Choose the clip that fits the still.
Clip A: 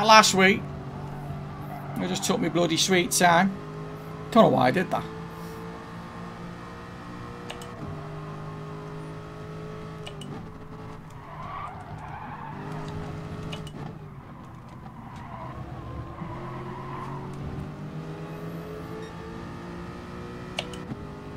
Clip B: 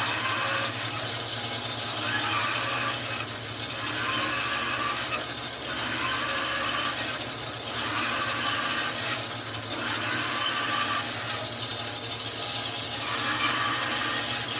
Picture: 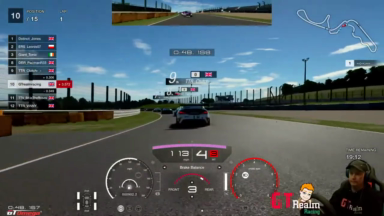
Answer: A